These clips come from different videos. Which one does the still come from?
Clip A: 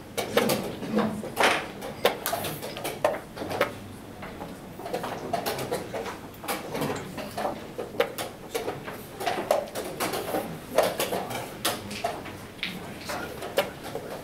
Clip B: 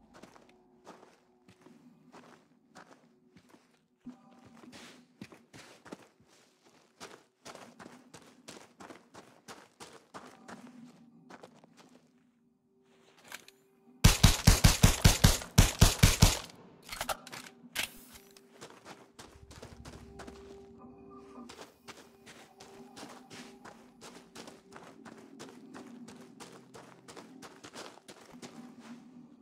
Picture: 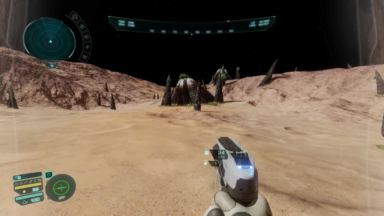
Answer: B